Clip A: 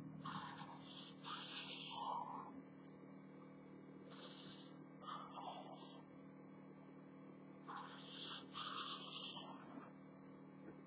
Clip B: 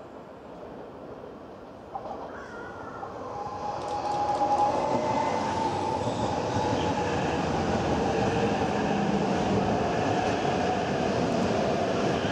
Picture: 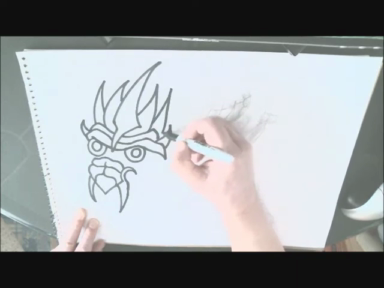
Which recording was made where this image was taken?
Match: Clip A